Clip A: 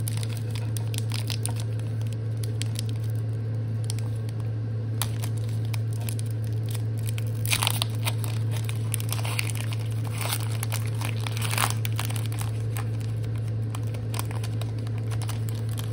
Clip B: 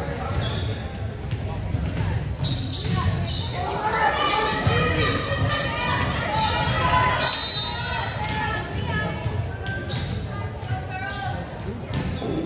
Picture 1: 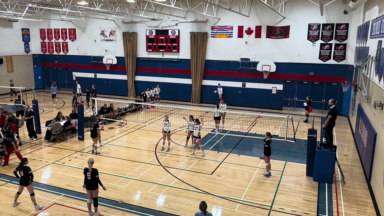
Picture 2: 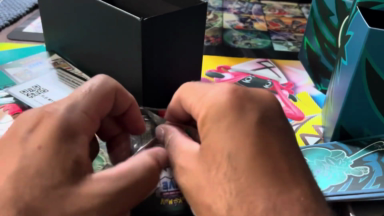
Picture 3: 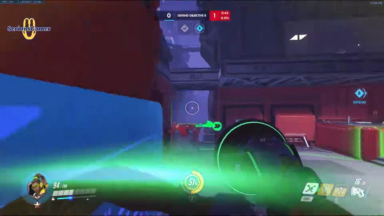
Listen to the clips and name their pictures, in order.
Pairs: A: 2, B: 1